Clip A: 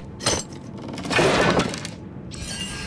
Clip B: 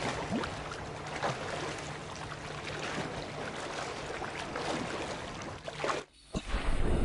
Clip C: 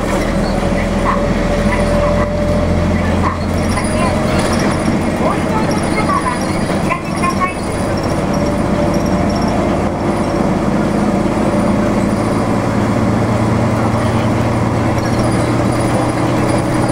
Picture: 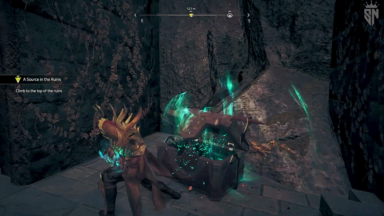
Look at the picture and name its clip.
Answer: A